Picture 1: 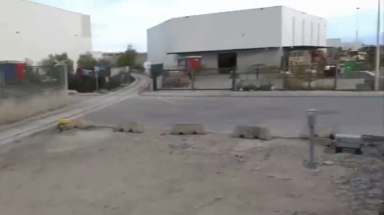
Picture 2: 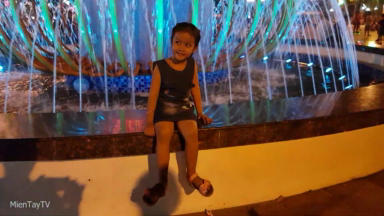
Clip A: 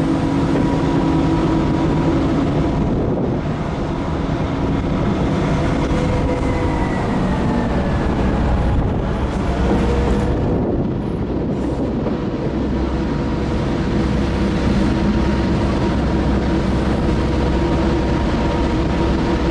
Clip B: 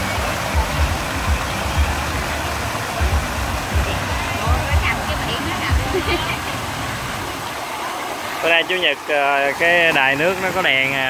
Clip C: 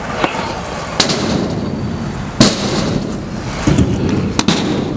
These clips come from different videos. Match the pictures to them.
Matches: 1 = A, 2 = B